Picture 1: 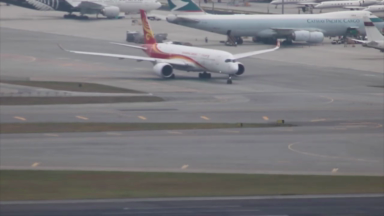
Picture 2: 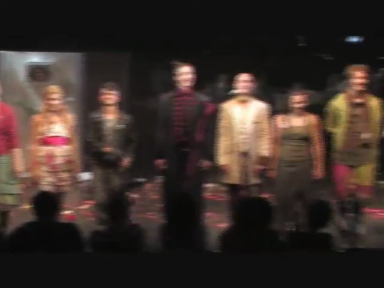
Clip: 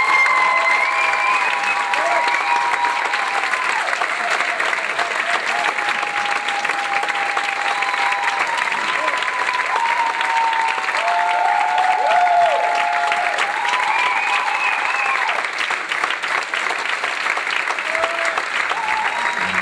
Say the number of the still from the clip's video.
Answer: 2